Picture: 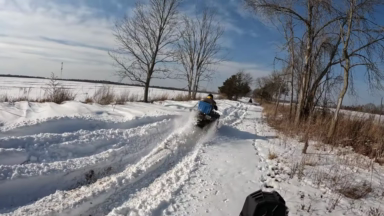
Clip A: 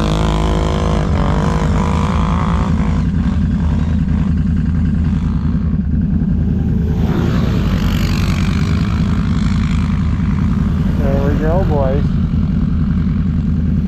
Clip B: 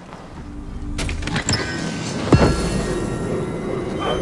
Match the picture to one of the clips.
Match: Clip A